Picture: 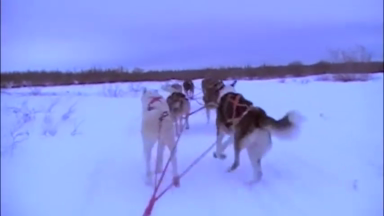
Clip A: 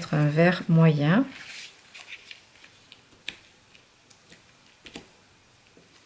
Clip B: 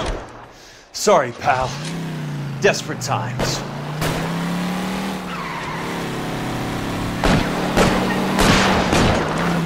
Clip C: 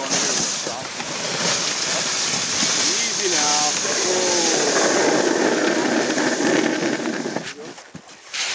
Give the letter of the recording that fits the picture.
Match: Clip C